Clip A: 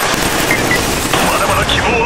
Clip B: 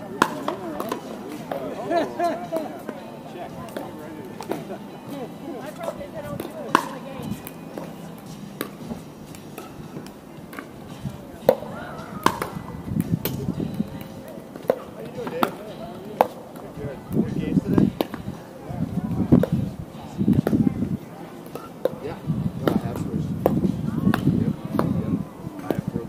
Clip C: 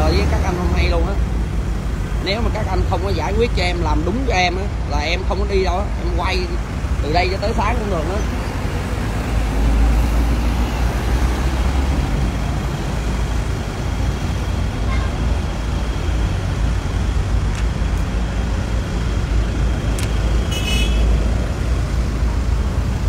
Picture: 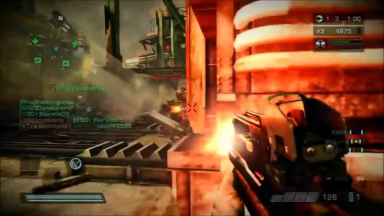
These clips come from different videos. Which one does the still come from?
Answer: A